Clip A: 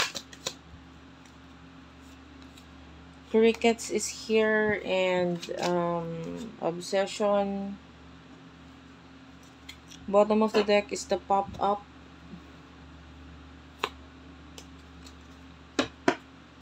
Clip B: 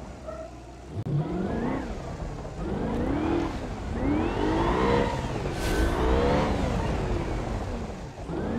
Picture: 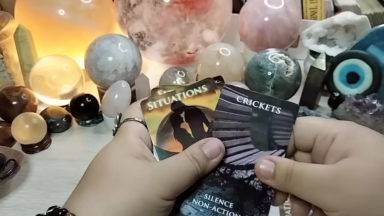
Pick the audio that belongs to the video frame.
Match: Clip A